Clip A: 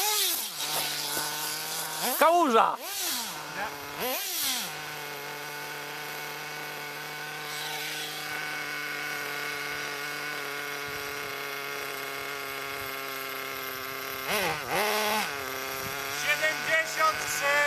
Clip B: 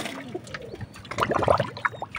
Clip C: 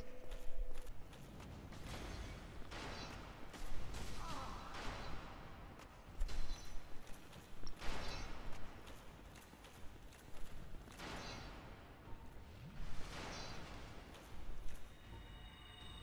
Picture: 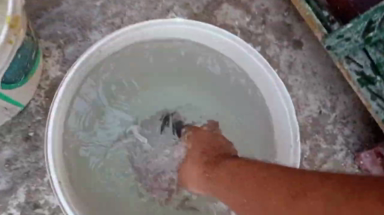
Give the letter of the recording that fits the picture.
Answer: B